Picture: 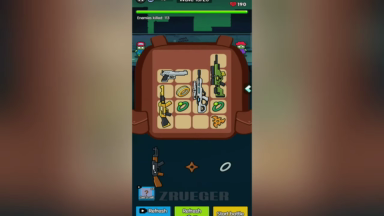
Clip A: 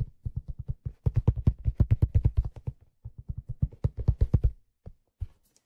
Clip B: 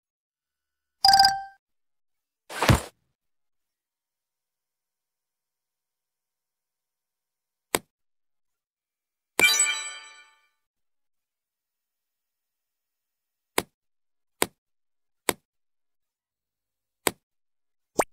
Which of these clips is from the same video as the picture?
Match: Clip B